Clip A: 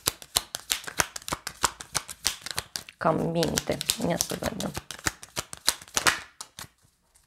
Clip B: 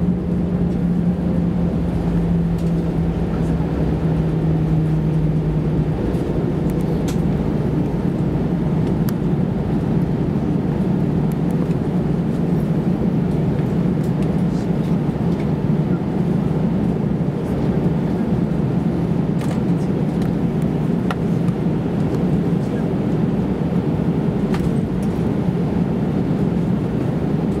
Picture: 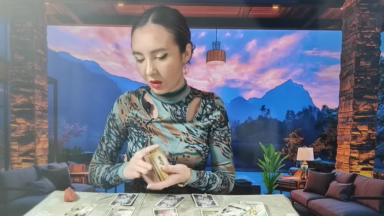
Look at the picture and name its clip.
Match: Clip A